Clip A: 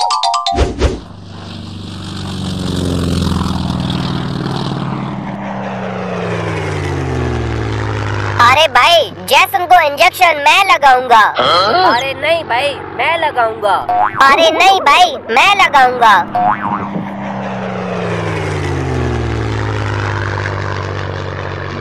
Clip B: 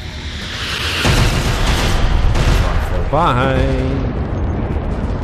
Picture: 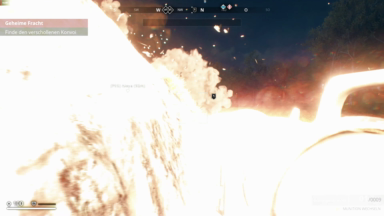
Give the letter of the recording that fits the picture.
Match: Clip B